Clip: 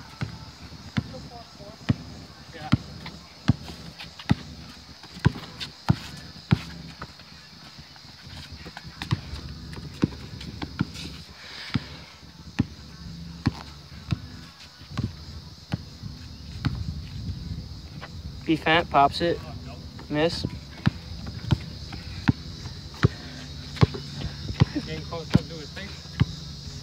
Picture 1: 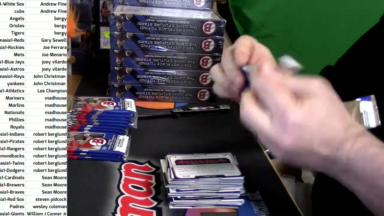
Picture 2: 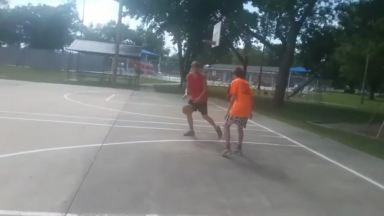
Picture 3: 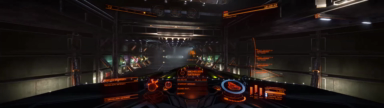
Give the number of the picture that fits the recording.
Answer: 2